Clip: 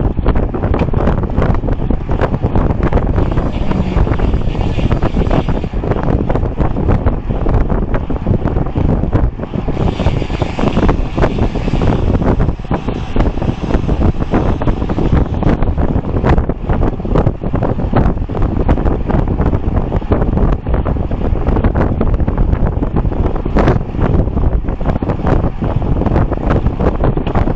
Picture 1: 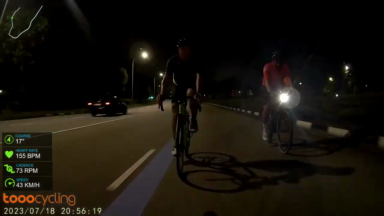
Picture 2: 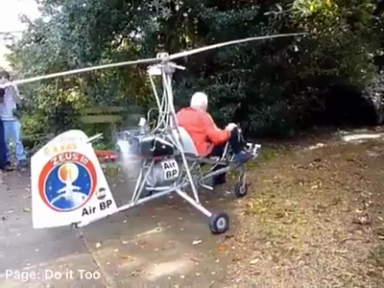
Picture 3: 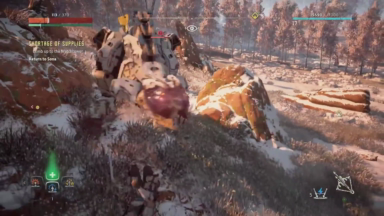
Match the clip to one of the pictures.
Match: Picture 1